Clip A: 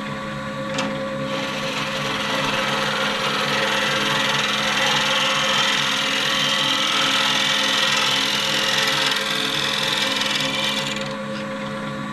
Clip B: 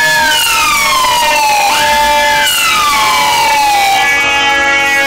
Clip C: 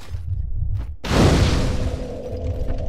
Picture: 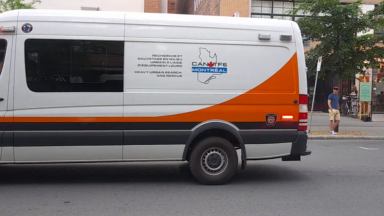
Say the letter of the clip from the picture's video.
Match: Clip B